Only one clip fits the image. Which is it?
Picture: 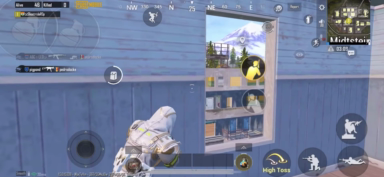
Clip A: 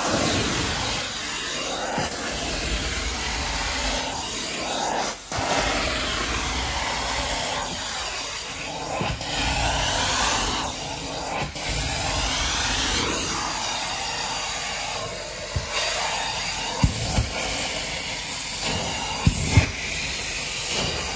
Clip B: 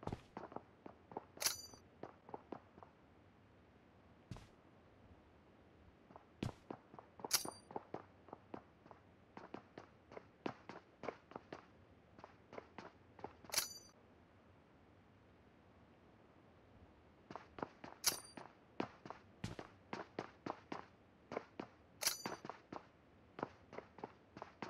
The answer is B